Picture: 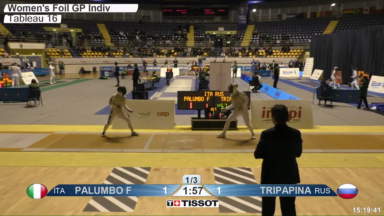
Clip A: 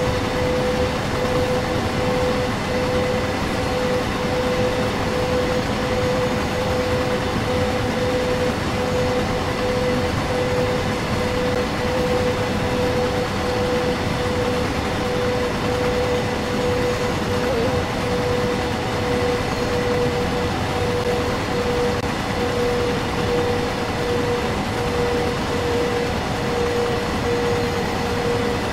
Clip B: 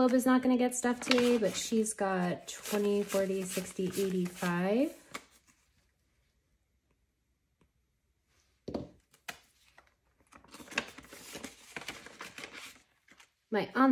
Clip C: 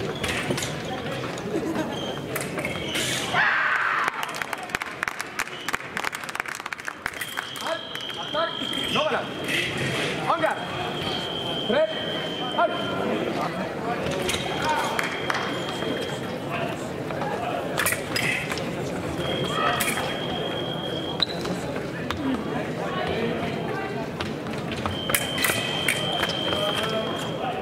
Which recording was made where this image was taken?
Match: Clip C